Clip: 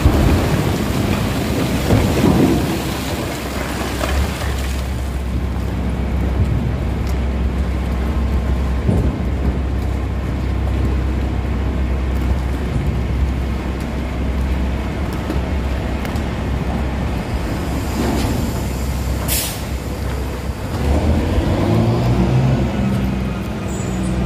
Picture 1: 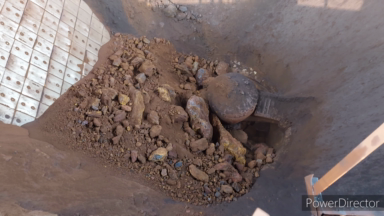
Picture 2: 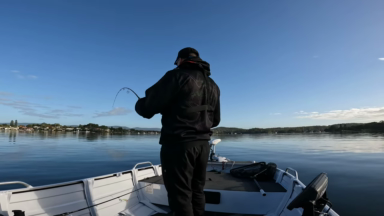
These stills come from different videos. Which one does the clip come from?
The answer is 1